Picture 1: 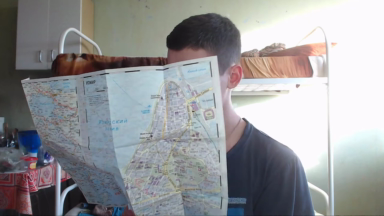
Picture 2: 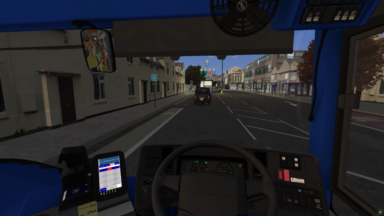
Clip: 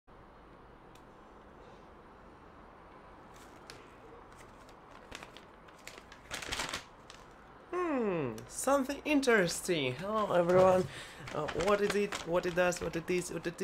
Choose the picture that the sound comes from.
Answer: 1